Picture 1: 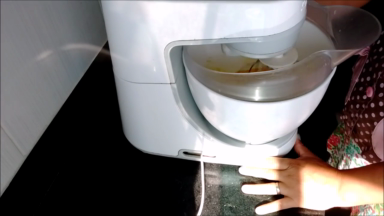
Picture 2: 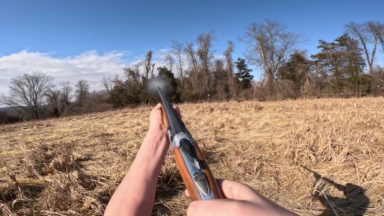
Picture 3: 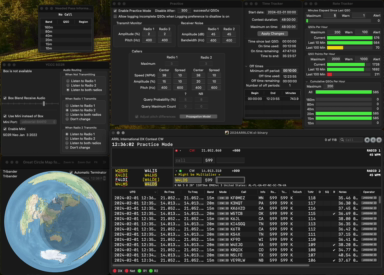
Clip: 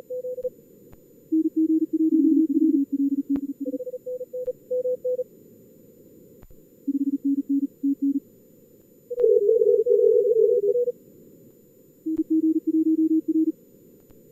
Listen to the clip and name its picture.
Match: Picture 3